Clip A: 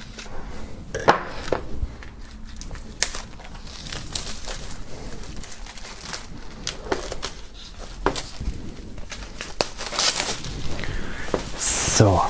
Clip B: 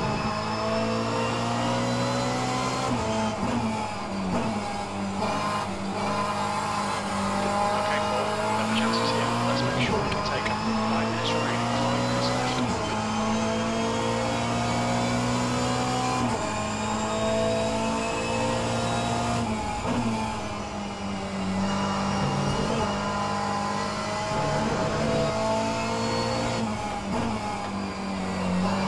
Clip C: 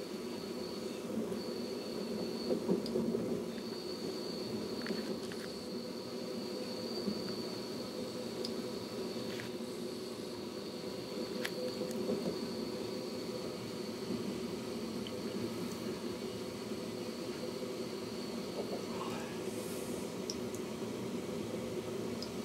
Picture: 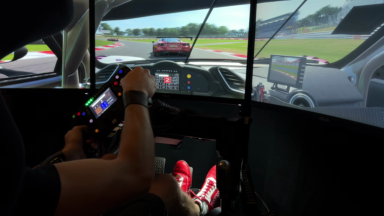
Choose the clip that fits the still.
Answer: B